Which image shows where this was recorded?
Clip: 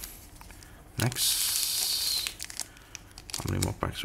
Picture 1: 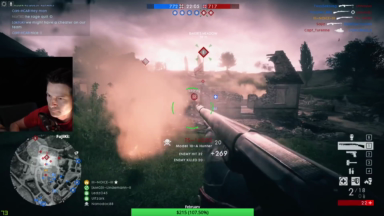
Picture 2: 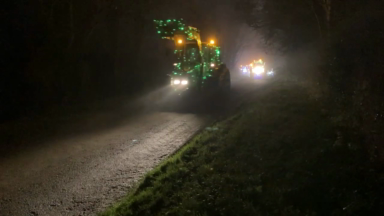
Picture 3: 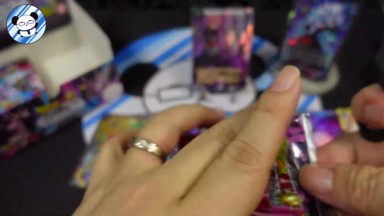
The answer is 3